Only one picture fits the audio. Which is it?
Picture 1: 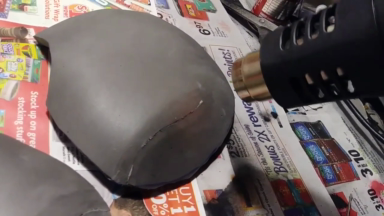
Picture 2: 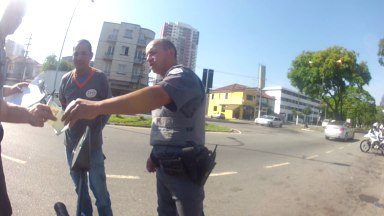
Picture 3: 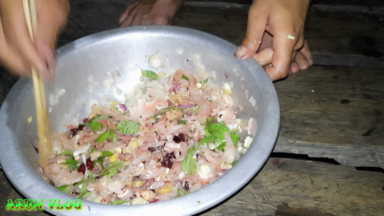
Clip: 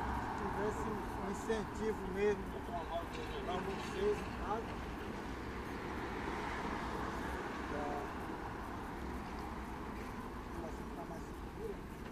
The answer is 2